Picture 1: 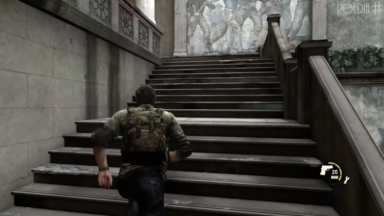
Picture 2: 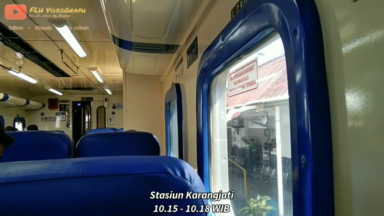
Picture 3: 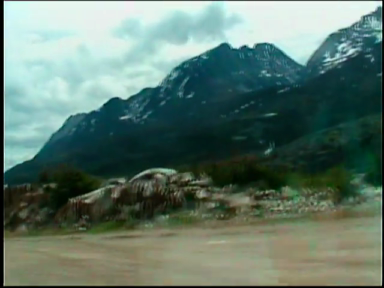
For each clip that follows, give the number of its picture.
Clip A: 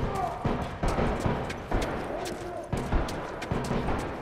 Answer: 1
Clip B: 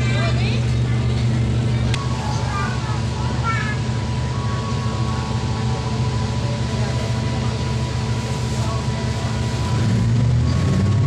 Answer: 2